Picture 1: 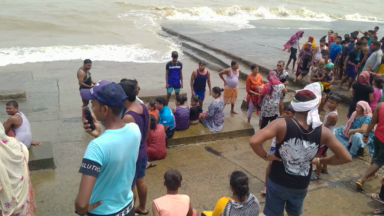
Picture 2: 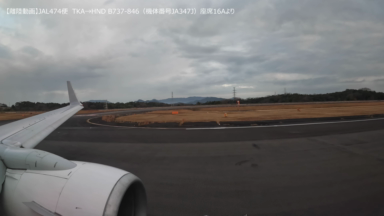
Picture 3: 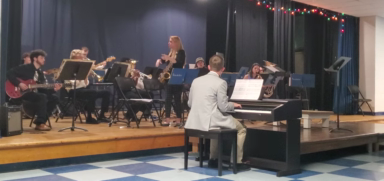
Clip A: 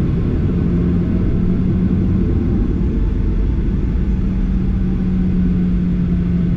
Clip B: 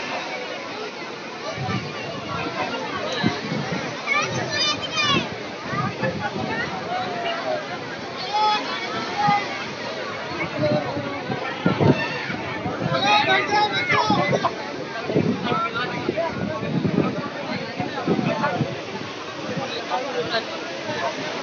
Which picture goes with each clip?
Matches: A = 2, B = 1